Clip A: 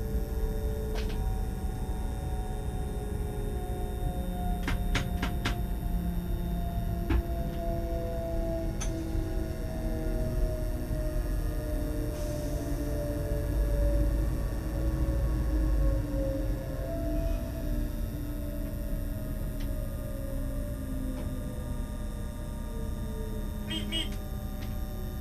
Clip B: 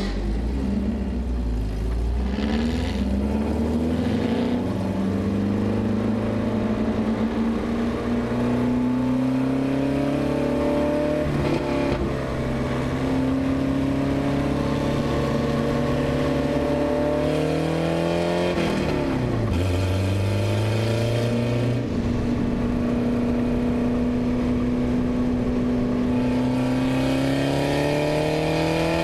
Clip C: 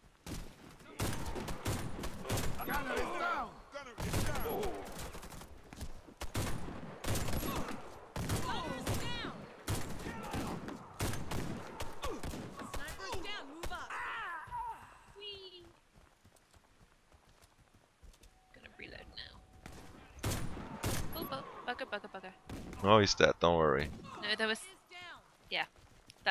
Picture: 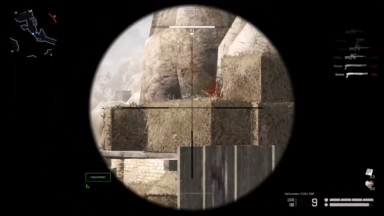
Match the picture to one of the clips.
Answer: C